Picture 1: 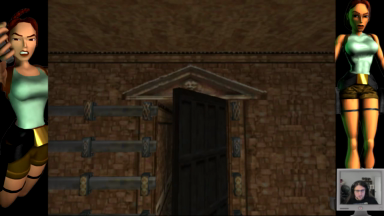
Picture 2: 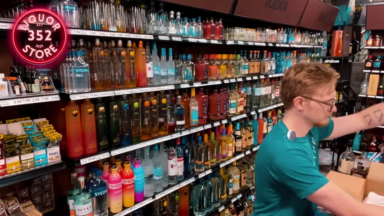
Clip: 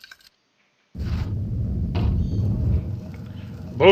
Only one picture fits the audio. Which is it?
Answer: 1